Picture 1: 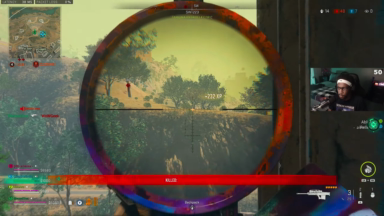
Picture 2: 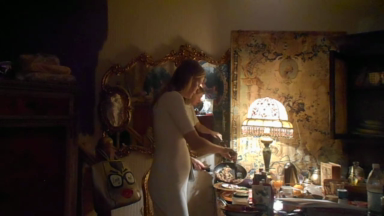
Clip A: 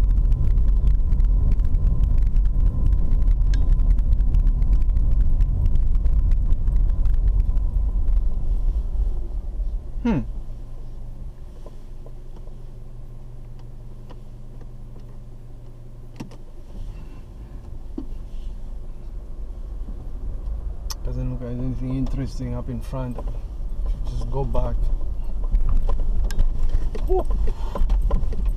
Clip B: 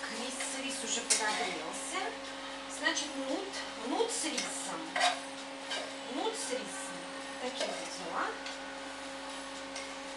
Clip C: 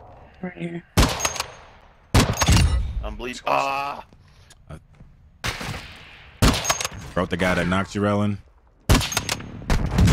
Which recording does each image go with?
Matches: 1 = C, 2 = B